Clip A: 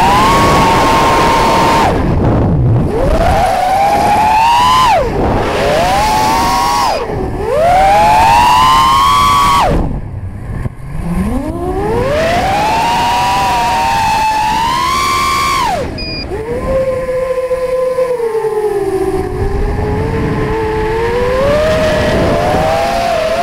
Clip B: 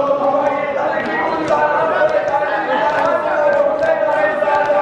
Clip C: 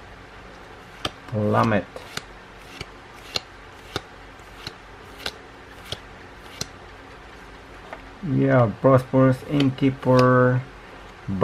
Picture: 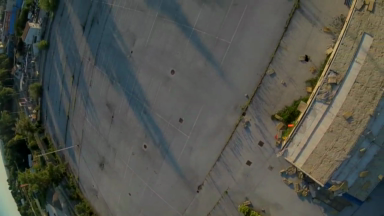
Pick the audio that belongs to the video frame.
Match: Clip A